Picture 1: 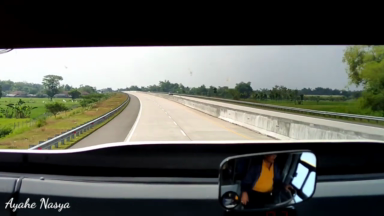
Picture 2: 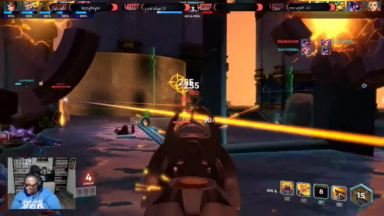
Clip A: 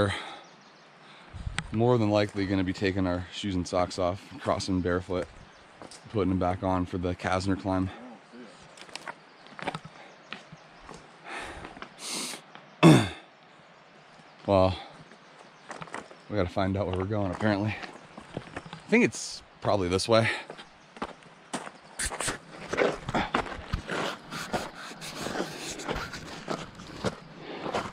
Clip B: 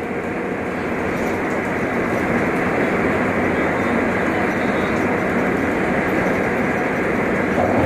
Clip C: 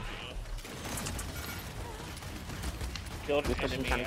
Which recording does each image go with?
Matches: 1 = B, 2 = C